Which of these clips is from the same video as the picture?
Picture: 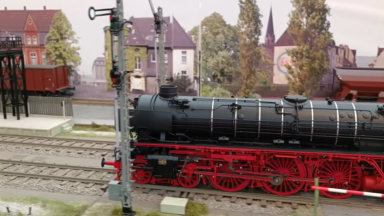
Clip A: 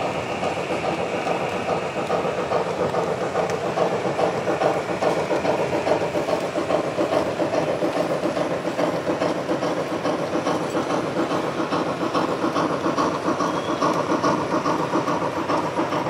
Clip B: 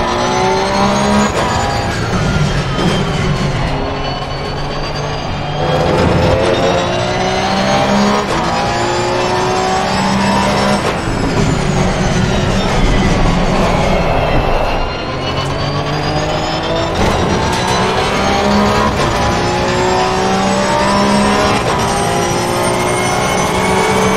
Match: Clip A